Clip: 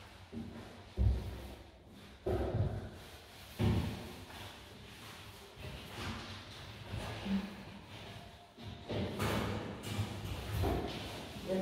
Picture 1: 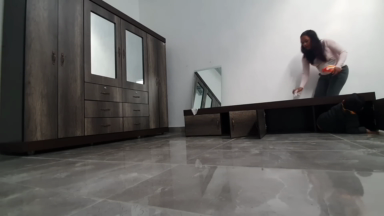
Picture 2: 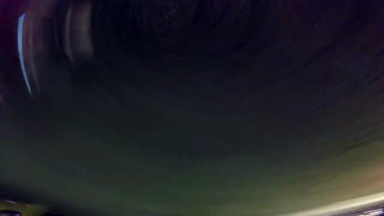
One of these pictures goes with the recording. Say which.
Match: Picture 1